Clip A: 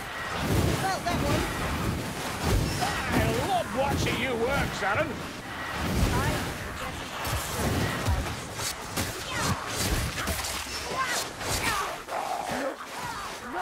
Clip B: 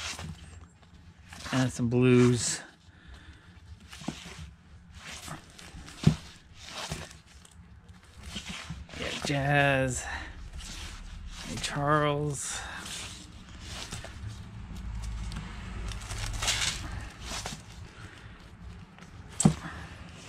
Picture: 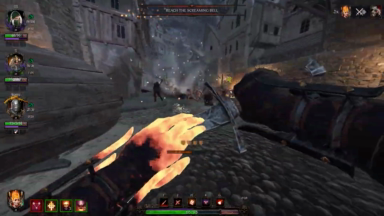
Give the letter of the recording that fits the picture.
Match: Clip A